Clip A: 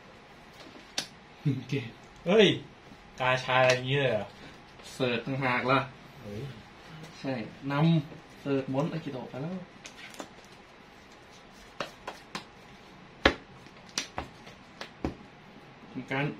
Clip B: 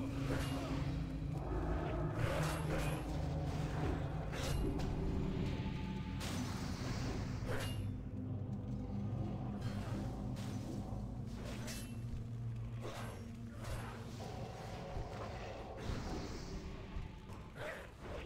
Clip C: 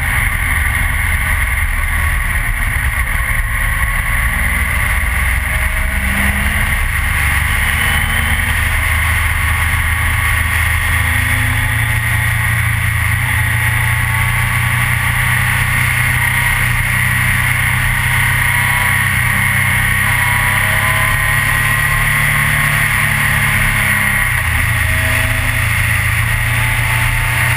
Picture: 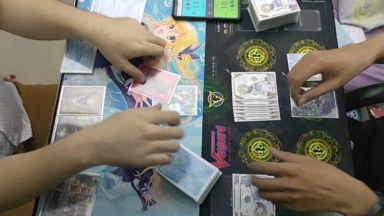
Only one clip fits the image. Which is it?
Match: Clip A